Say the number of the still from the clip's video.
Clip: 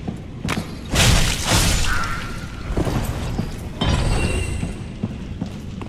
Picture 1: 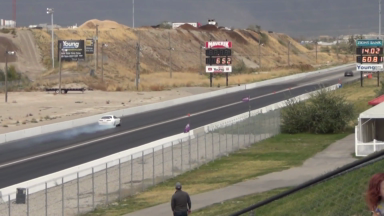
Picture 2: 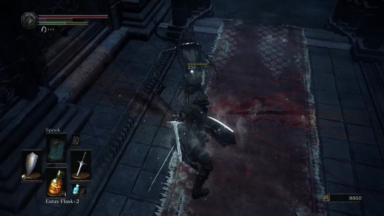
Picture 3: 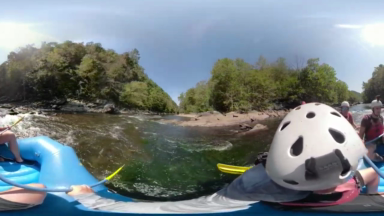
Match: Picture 2